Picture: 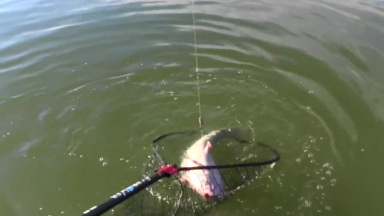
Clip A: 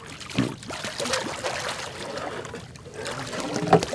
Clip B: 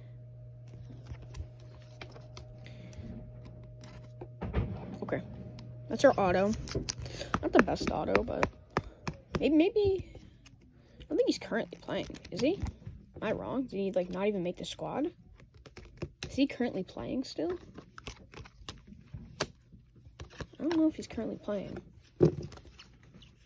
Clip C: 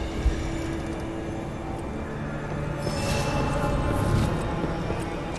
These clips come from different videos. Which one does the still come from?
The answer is A